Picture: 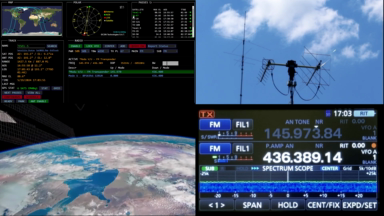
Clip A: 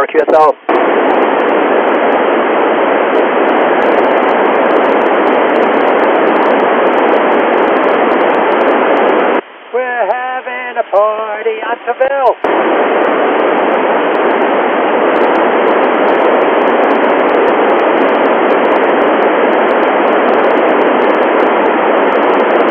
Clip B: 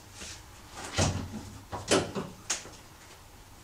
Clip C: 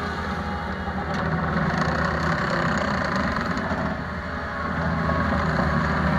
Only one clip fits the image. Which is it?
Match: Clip A